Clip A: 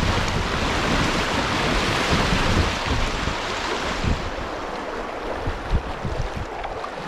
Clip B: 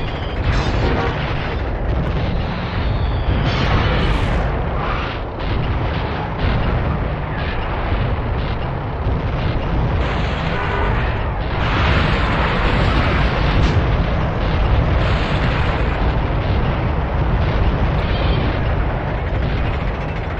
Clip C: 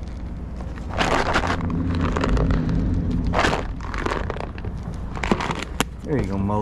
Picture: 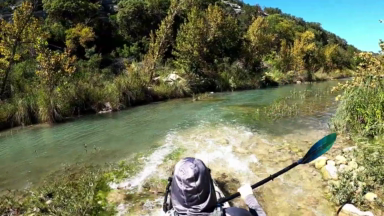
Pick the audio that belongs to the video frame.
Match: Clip A